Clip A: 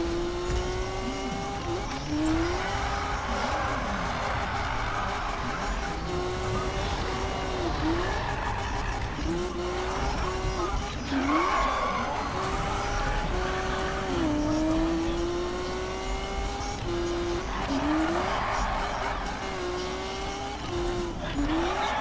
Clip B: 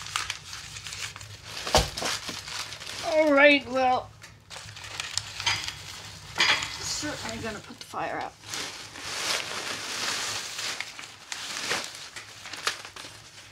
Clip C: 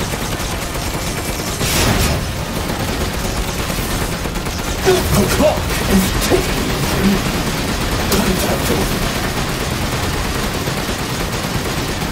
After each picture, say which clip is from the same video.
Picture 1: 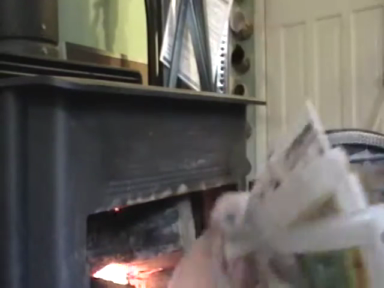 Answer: B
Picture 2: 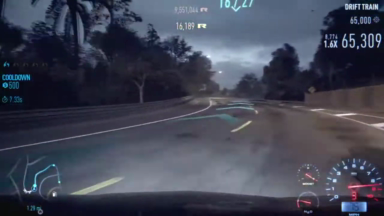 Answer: A